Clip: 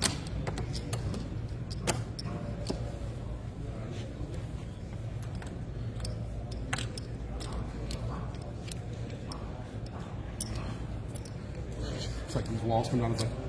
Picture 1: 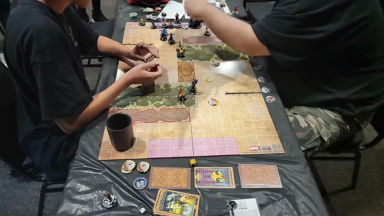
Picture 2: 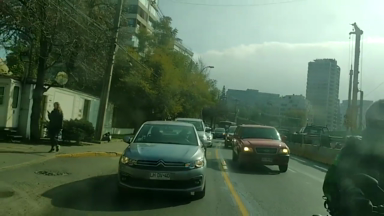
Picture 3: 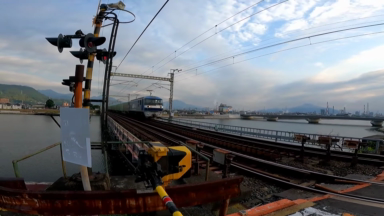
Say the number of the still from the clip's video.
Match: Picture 1